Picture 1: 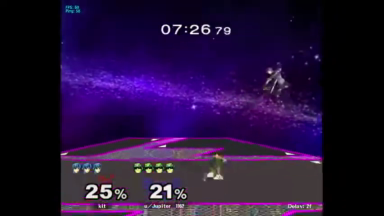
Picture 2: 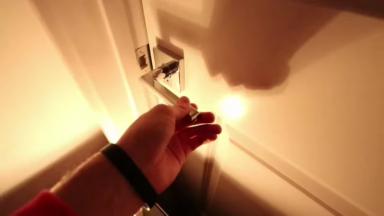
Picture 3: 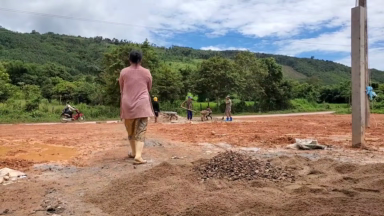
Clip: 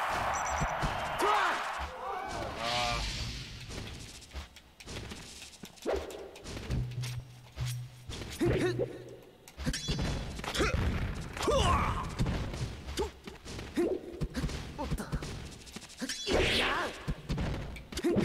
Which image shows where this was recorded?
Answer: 1